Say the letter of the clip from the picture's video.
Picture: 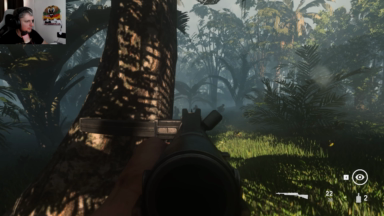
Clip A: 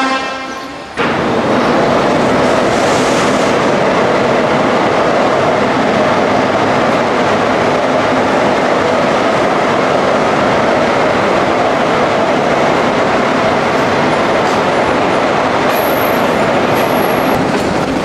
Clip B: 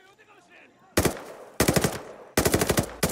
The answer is B